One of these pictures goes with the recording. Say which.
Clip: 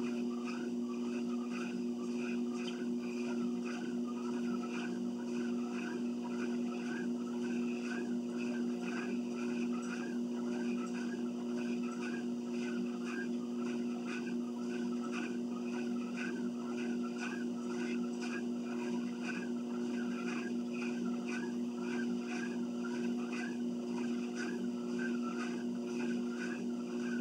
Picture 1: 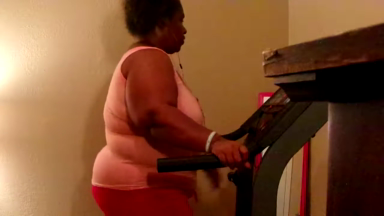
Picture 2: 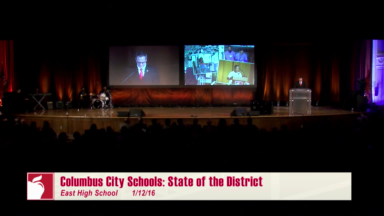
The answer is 1